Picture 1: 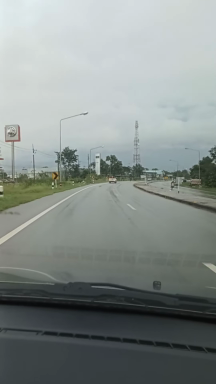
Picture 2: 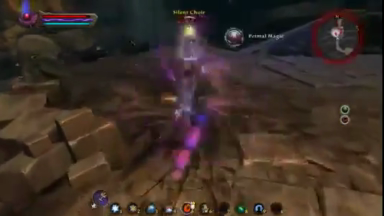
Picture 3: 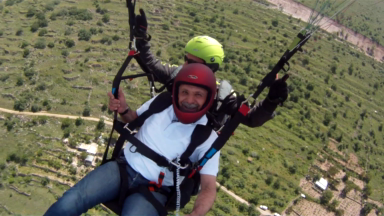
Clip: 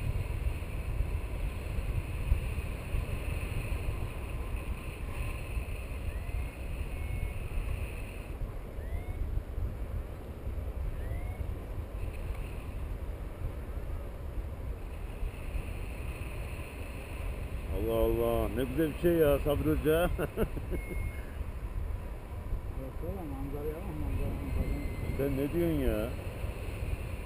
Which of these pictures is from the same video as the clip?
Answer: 3